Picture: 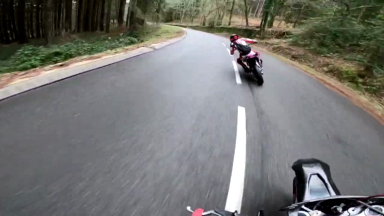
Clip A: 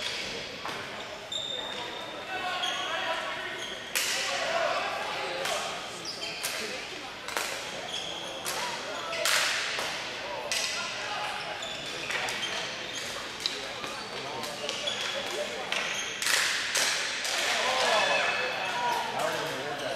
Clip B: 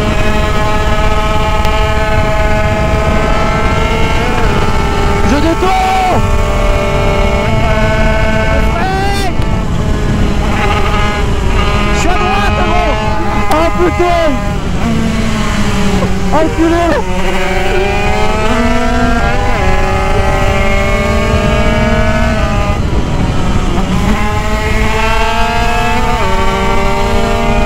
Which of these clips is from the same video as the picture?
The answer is B